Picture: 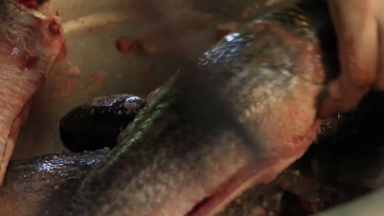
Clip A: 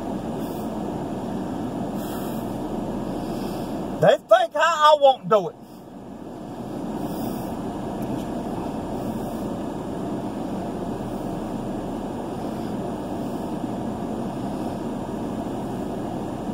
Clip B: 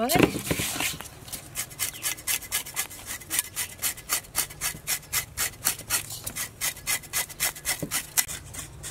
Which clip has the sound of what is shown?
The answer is B